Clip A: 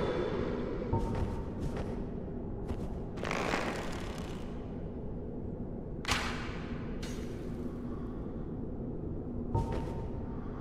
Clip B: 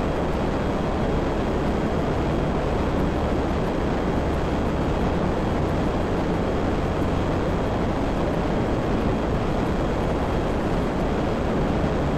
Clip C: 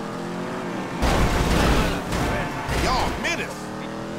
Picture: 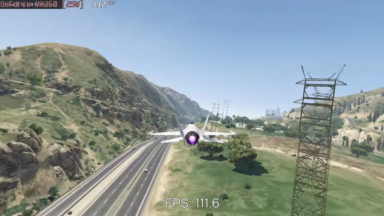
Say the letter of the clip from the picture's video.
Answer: B